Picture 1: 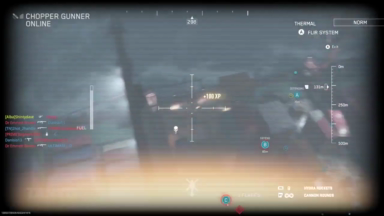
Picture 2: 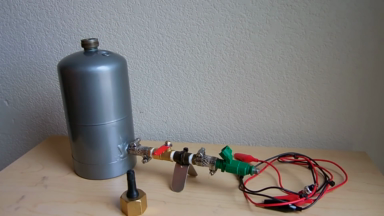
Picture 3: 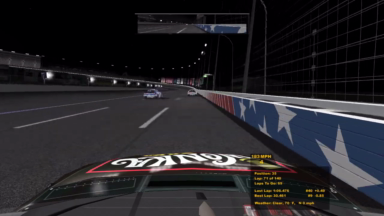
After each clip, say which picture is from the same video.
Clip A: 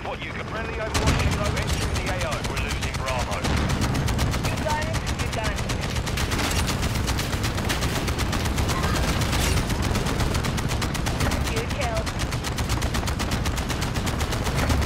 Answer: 1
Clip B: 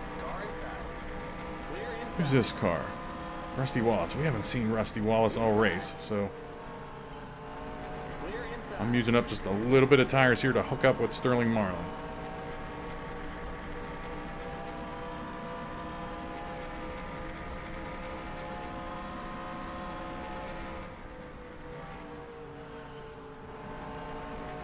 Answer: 3